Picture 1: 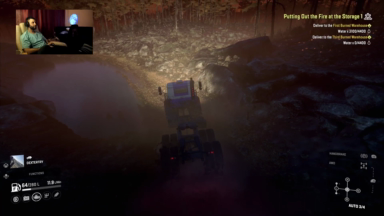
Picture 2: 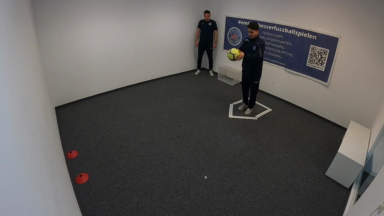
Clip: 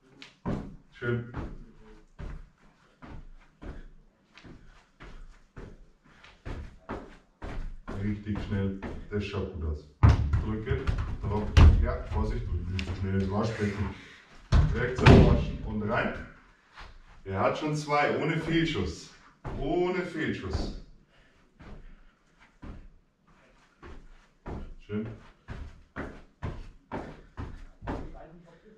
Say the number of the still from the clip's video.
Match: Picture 2